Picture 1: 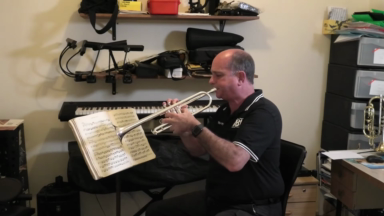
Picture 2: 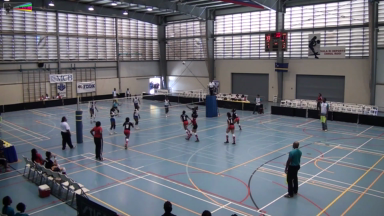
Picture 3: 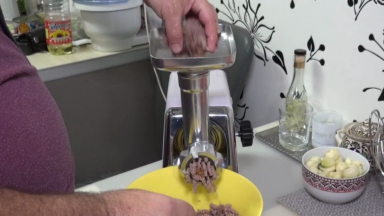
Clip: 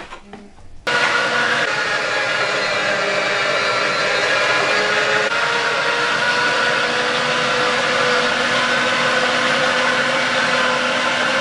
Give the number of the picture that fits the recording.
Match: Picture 3